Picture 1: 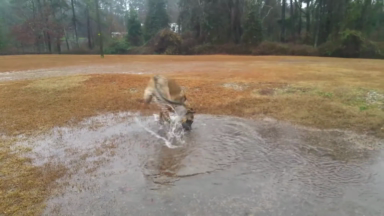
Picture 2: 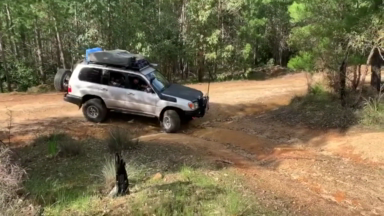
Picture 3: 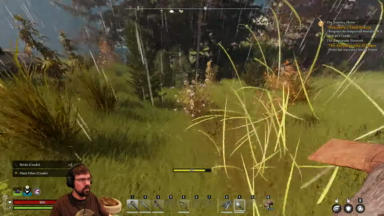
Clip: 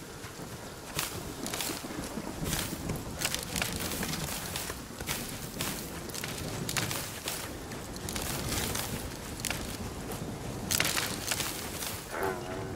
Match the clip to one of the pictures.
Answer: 3